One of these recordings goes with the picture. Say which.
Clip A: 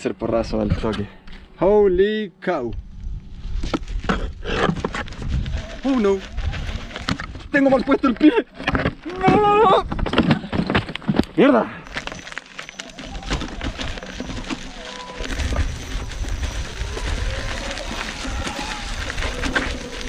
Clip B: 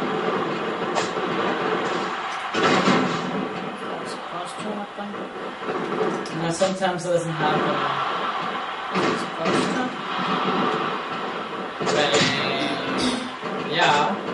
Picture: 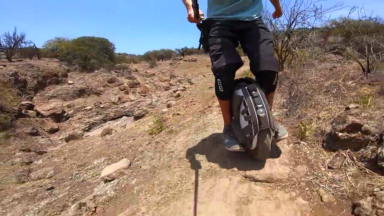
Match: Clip A